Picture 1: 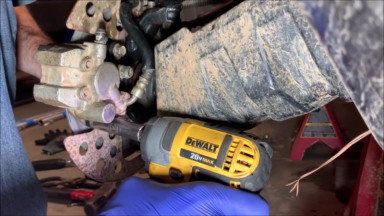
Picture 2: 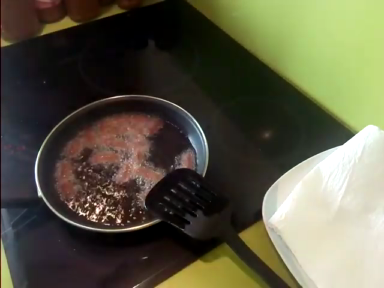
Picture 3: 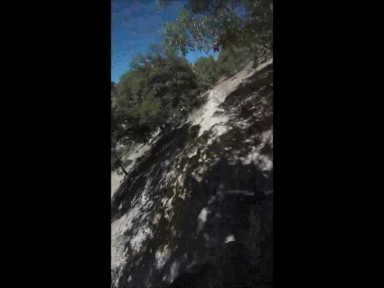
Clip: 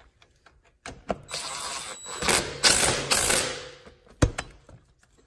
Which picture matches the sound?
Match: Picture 1